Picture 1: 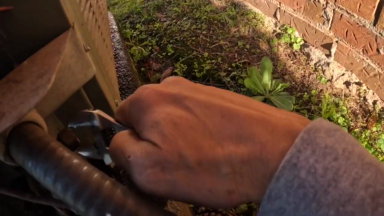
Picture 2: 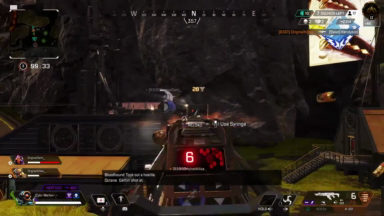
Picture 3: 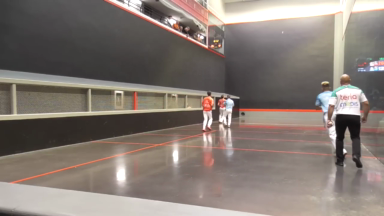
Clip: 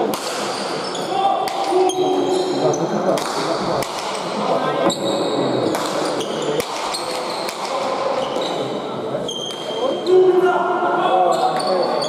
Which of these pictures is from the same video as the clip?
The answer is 3